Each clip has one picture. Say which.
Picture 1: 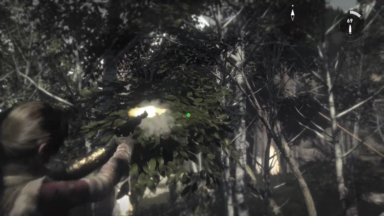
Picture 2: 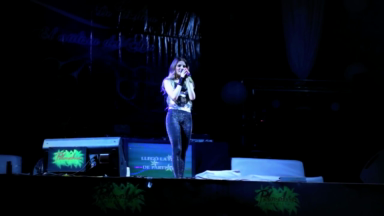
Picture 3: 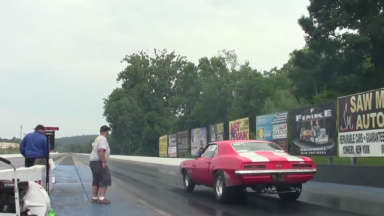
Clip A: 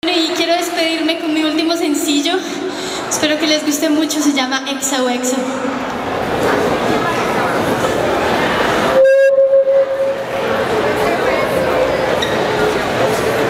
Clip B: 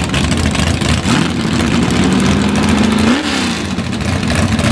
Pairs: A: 2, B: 3